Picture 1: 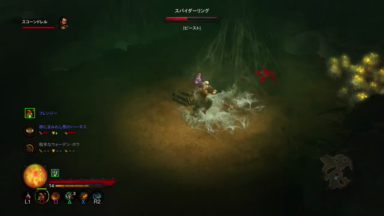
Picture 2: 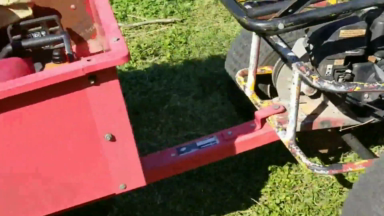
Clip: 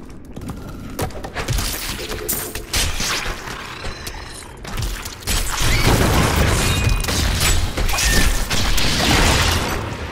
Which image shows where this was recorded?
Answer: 1